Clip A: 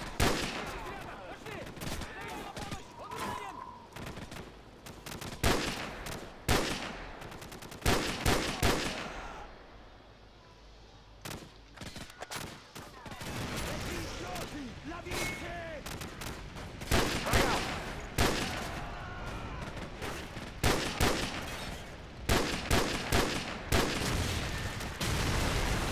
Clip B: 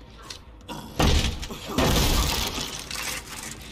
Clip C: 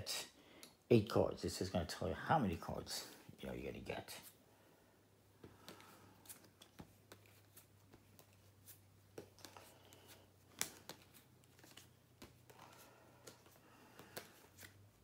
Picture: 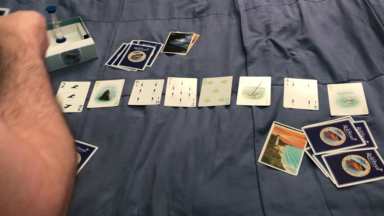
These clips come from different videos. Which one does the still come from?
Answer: C